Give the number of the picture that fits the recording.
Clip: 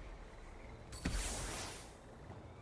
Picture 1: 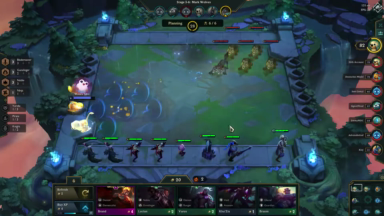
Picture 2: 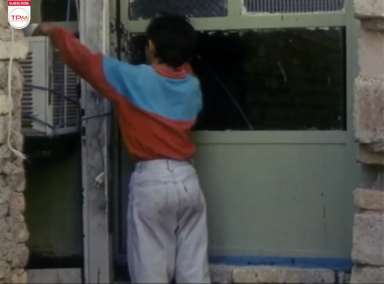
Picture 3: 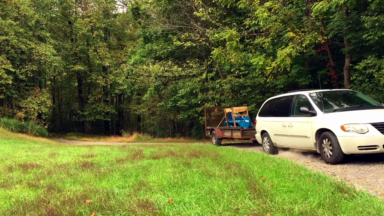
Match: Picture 1